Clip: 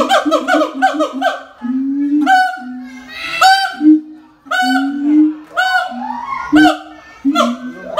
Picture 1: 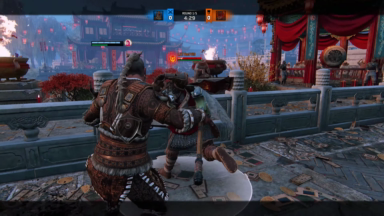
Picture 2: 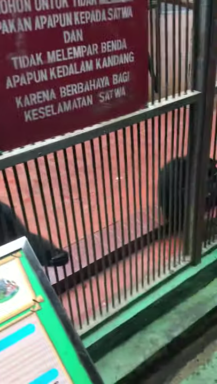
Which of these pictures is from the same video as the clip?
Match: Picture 2